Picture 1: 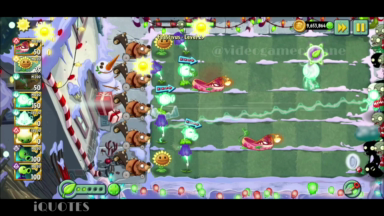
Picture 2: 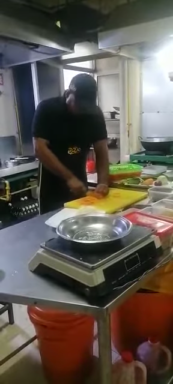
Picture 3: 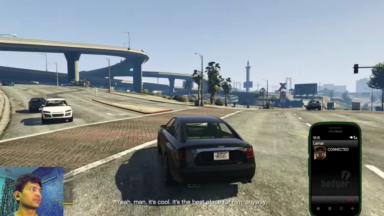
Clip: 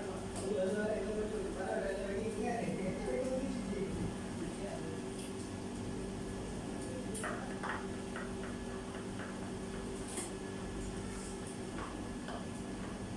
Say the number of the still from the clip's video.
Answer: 2